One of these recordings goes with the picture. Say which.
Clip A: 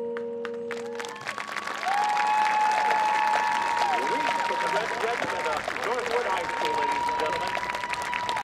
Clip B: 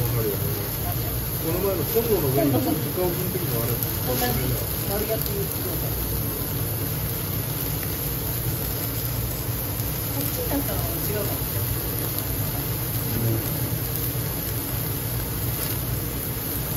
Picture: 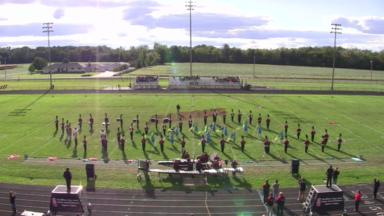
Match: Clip A